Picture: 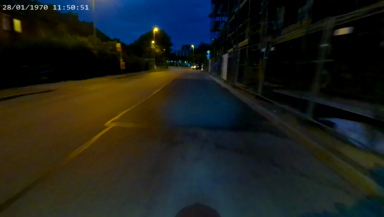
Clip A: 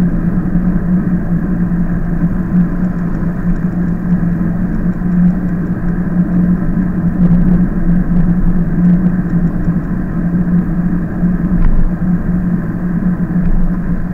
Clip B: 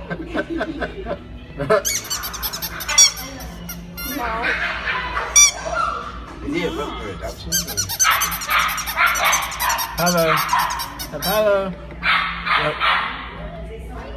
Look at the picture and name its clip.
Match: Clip A